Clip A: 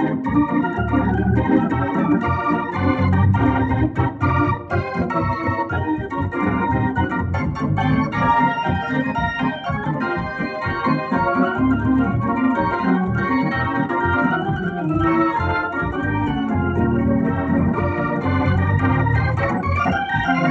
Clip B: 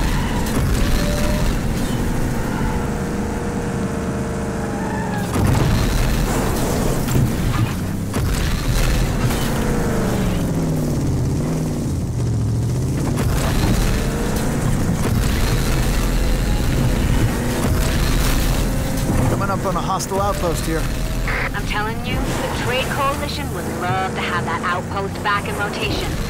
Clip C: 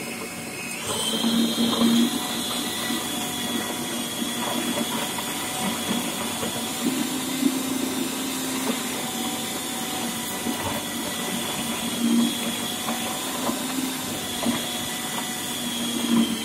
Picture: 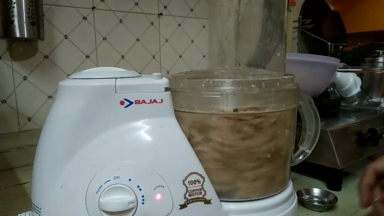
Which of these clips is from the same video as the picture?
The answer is C